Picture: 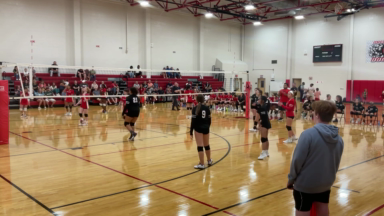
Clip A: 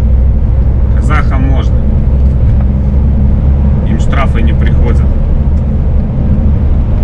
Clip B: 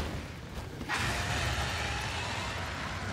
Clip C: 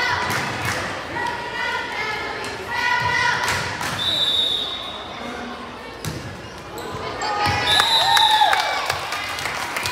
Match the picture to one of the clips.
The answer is C